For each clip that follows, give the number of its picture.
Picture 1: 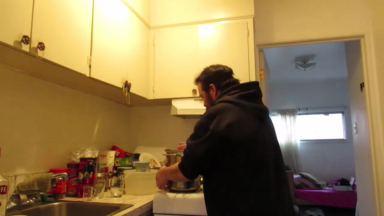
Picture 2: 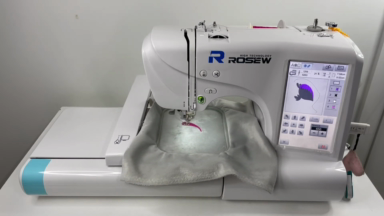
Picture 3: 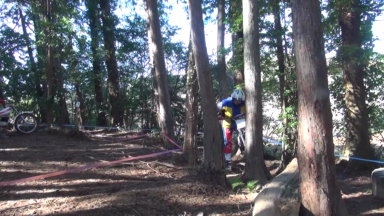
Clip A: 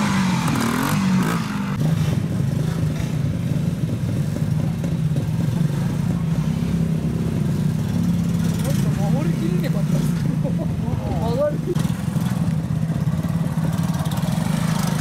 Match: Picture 3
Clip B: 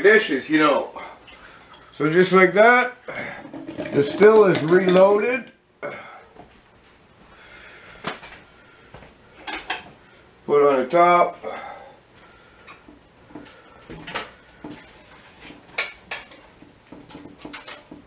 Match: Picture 1